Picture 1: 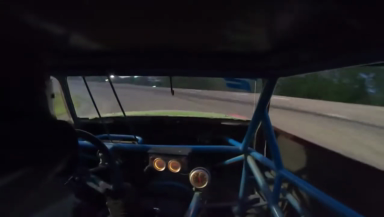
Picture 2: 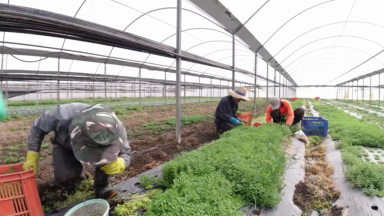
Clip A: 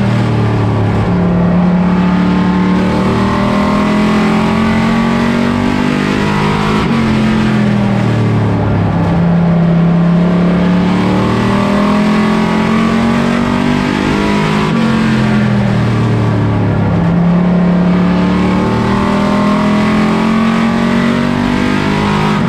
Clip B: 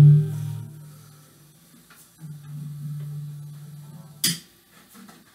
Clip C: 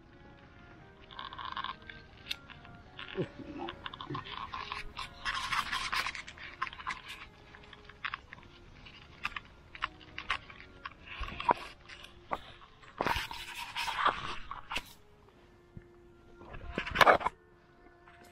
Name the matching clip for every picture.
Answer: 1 A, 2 C